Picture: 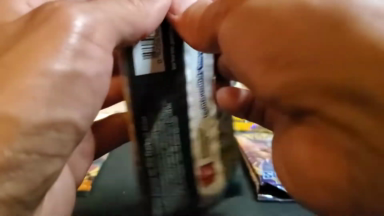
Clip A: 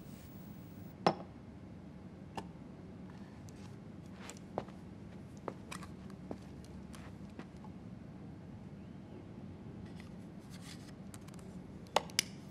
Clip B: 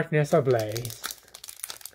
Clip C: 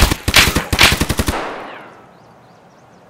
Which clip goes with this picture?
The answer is B